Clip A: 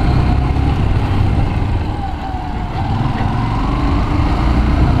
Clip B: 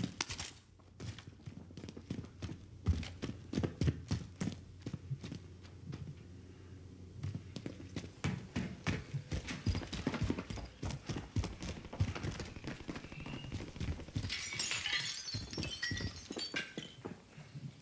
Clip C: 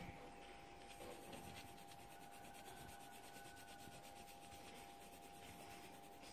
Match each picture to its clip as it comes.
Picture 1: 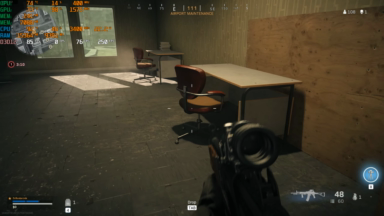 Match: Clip B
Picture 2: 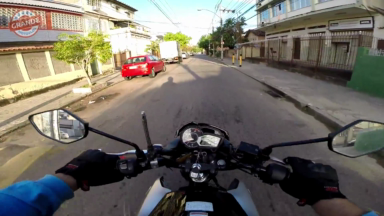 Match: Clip A